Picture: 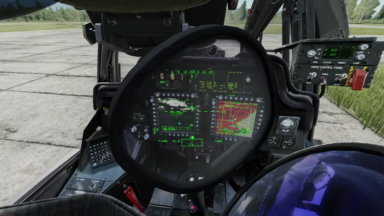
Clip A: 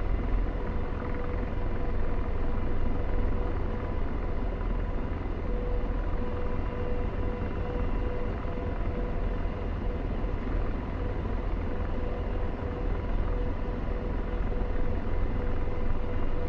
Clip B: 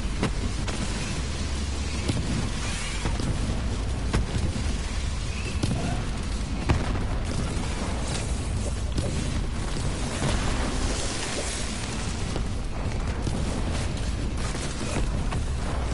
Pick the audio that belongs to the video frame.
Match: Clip A